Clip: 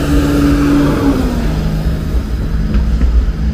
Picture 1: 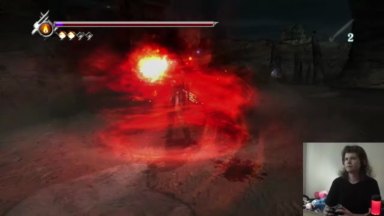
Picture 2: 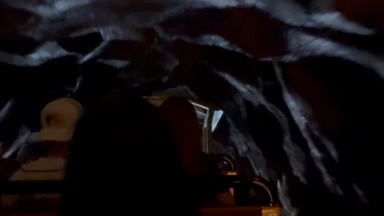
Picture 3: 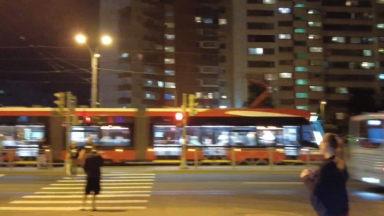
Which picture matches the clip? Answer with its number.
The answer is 3